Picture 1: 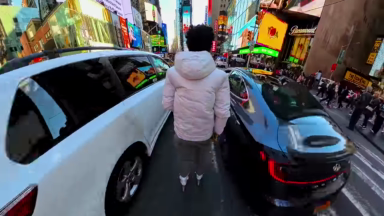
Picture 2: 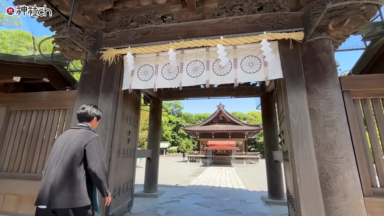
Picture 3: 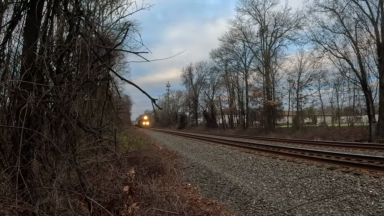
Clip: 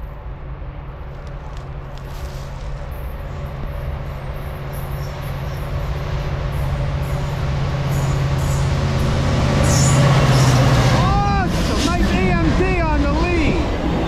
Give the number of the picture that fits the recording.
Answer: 3